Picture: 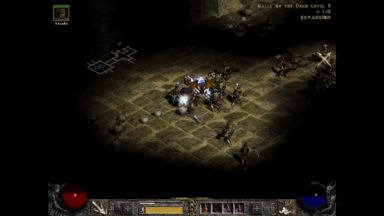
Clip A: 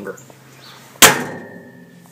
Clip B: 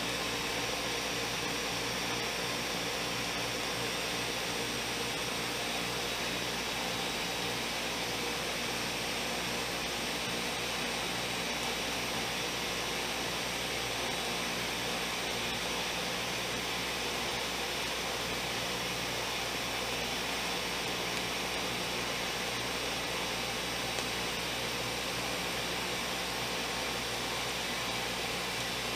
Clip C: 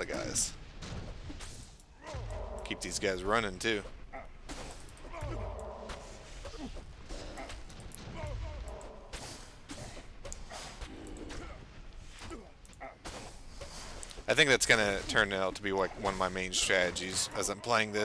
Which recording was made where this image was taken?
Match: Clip C